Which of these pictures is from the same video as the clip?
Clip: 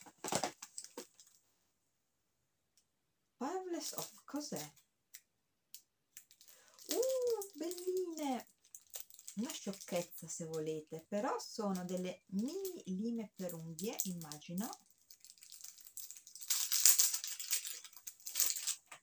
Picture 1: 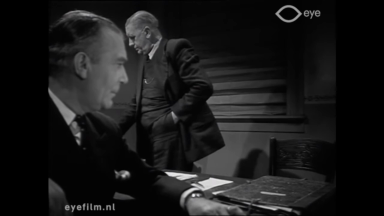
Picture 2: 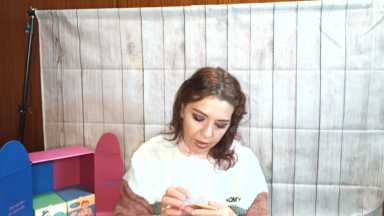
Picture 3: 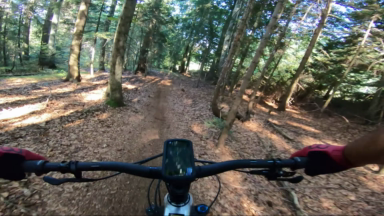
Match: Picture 2